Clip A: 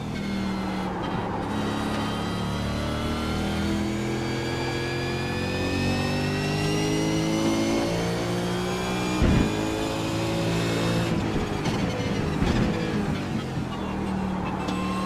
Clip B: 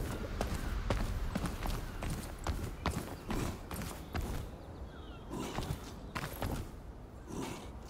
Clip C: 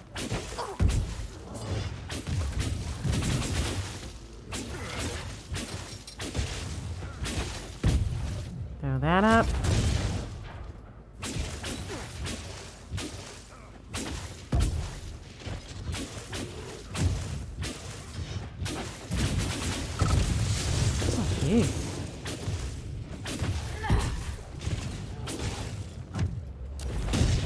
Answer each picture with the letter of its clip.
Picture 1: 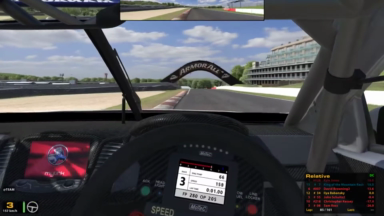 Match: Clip A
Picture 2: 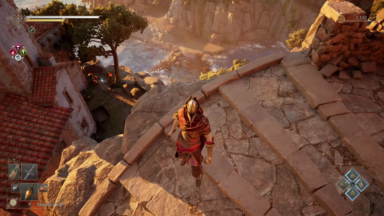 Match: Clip B